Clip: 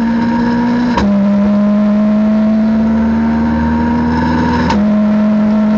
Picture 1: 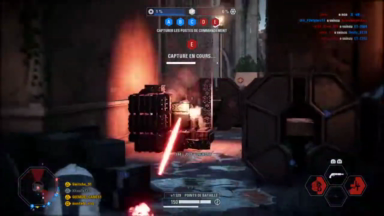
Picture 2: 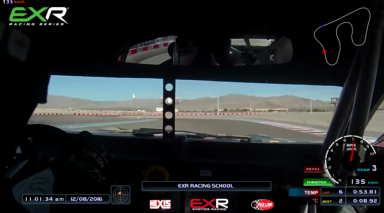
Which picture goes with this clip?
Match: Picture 2